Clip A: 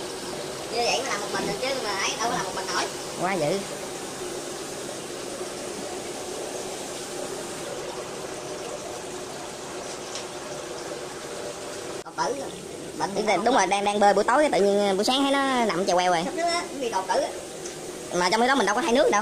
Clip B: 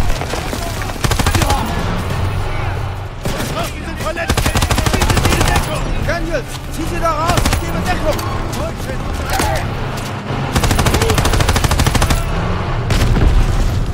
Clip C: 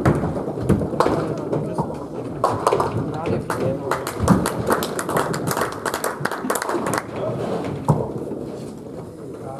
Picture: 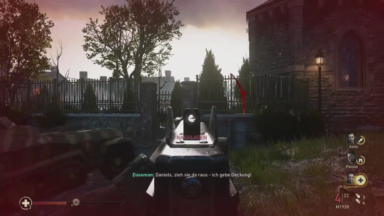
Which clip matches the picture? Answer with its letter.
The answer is B